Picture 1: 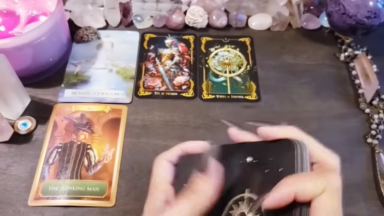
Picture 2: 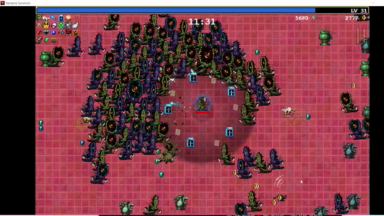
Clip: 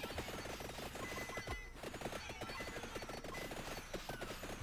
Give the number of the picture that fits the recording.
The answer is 2